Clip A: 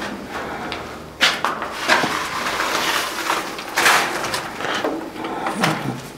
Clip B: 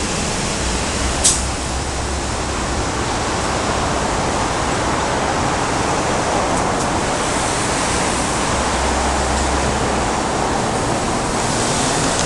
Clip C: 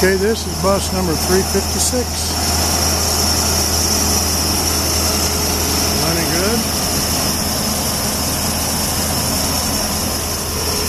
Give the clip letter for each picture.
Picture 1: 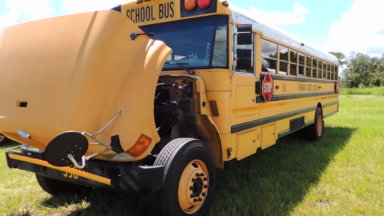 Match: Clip C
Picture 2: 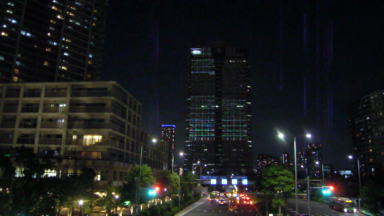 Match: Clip B